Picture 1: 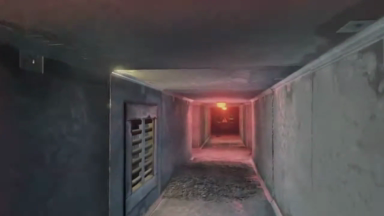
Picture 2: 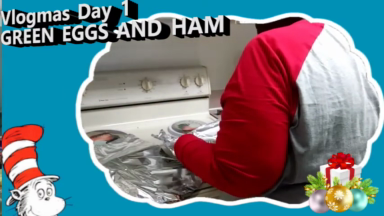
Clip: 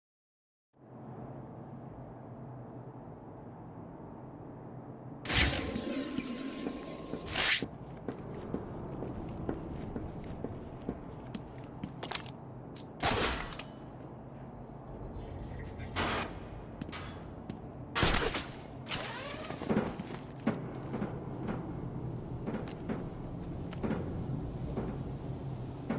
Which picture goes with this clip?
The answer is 1